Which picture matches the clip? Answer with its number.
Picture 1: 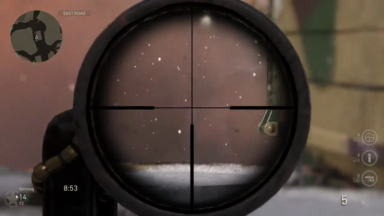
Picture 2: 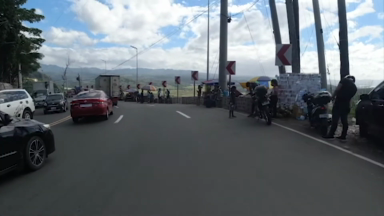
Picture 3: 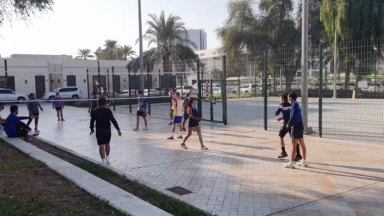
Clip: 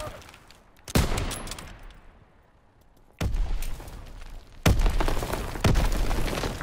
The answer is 1